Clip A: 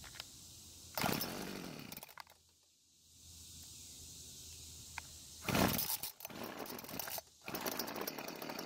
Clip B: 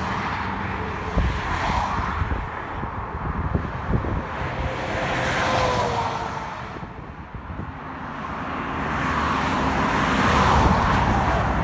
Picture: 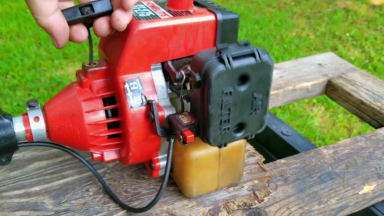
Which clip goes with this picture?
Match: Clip A